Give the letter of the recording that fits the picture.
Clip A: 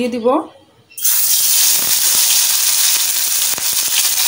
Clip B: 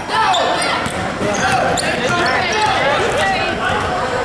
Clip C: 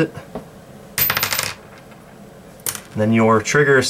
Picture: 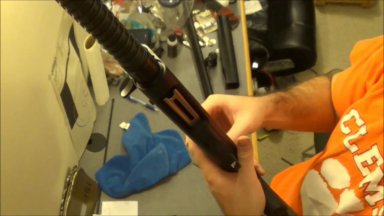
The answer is C